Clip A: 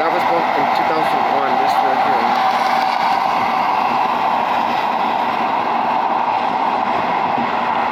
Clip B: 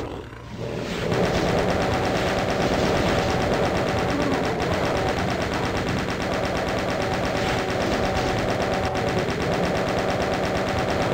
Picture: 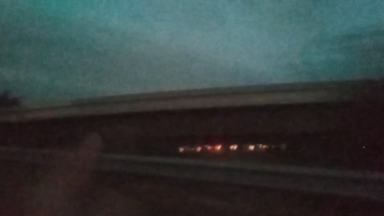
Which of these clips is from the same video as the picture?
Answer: A